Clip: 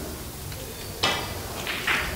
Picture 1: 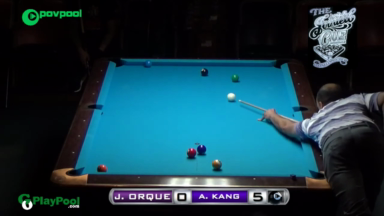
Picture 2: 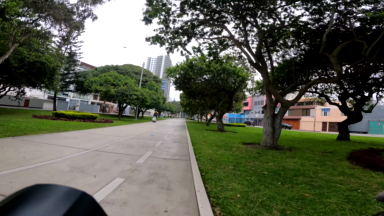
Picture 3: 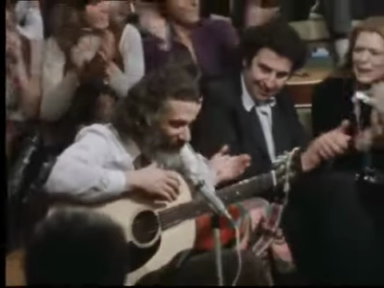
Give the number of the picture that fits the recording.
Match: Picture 1